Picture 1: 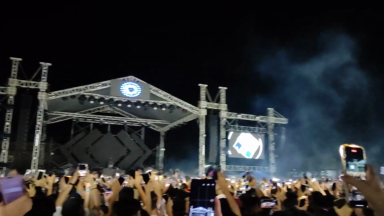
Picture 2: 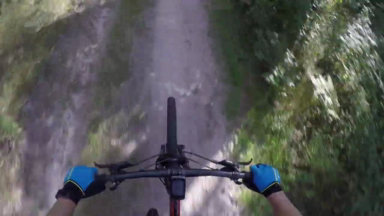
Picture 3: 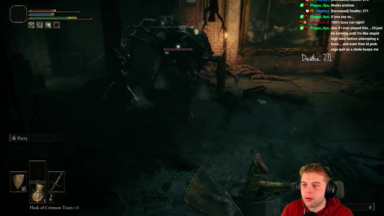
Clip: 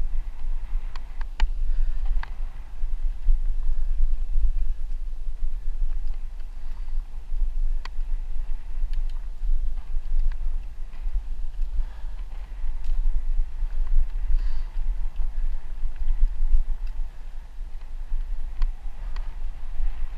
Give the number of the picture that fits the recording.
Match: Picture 2